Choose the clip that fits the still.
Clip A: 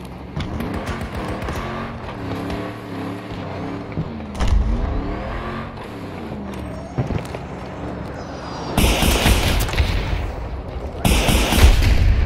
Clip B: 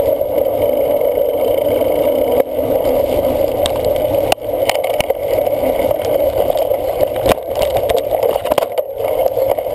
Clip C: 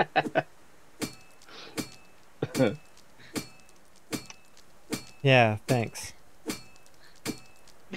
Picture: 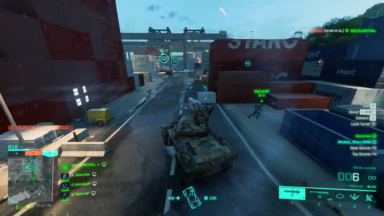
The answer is A